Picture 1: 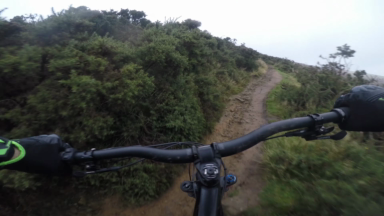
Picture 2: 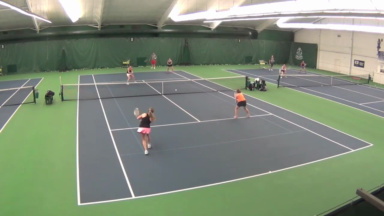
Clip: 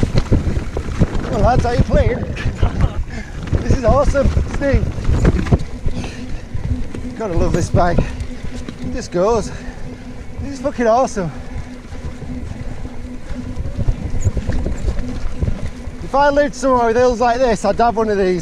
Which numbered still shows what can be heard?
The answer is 1